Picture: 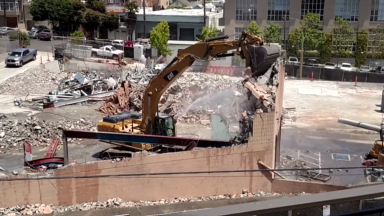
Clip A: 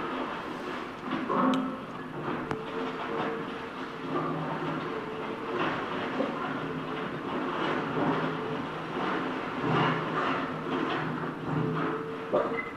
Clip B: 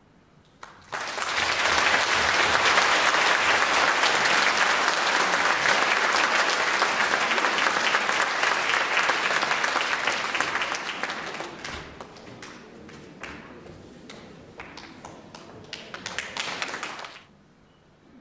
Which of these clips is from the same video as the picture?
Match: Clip A